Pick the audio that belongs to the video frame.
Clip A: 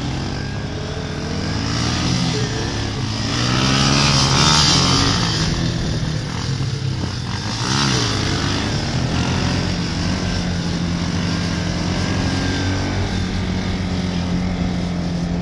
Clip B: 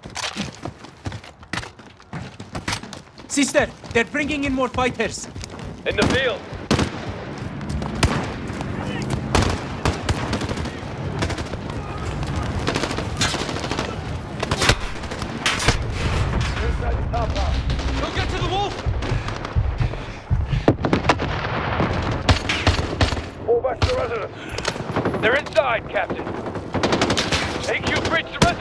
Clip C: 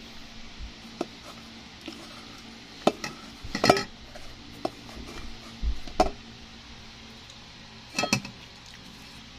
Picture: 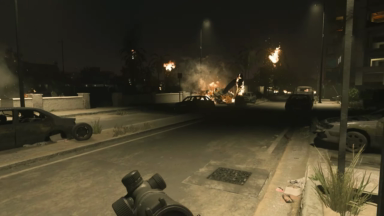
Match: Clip B